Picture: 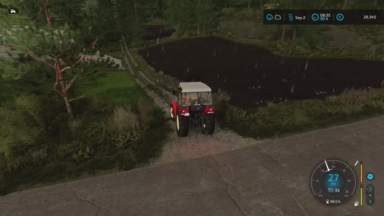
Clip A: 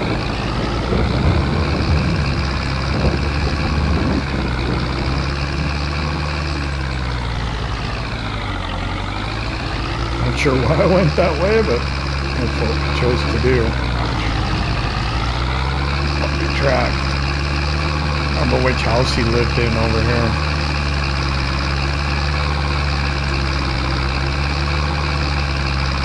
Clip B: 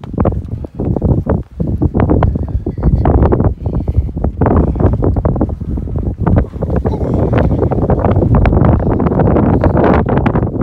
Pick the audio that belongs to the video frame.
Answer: A